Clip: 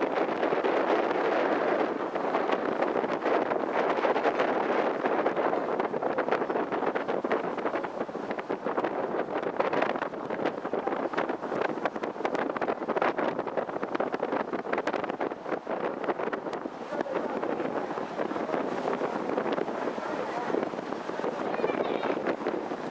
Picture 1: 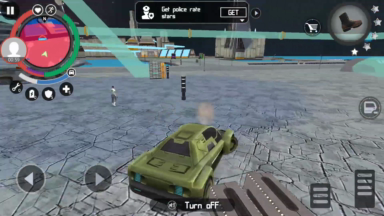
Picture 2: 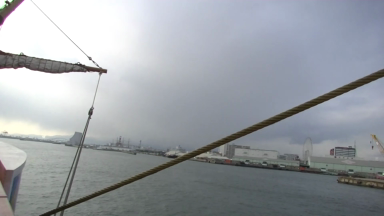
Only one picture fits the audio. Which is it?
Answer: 2